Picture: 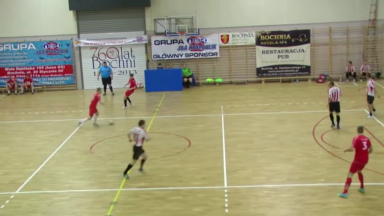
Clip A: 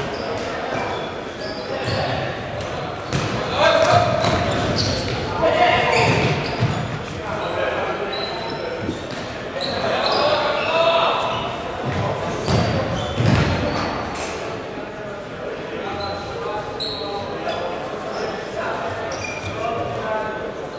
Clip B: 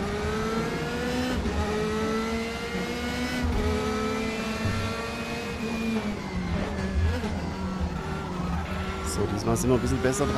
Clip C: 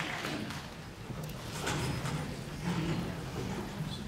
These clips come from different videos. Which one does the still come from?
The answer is A